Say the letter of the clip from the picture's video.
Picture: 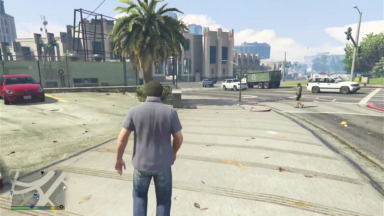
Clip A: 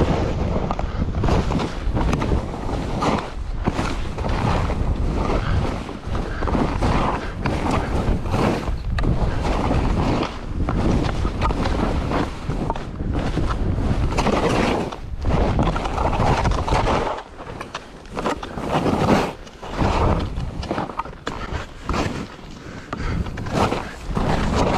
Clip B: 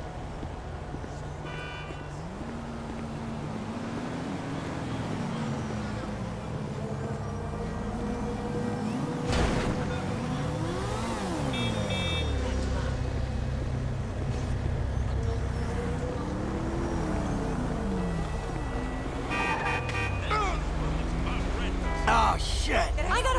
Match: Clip B